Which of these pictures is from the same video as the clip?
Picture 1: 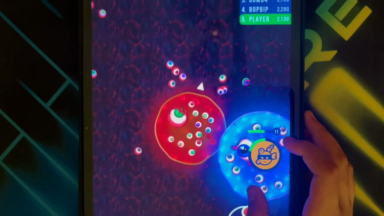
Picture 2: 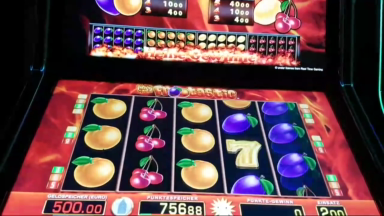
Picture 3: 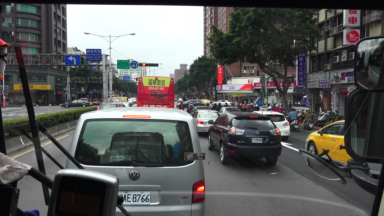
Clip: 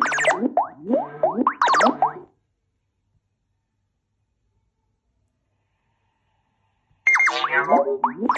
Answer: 1